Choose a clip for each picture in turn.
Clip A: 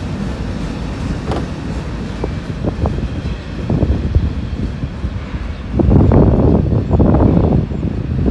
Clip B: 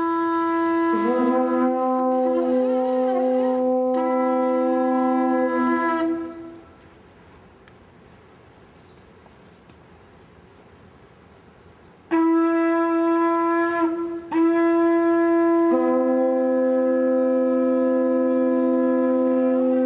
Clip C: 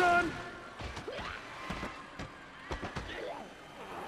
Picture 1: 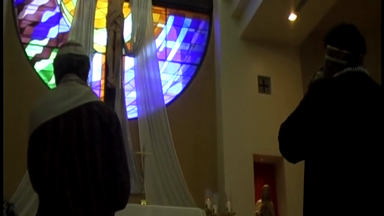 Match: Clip B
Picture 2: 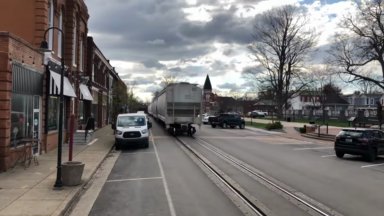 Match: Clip A